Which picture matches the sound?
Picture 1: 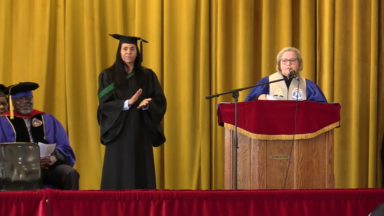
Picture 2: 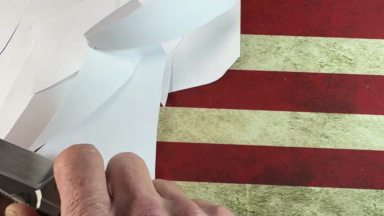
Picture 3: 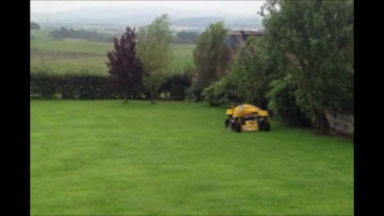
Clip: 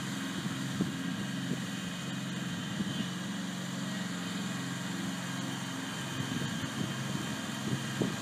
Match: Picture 3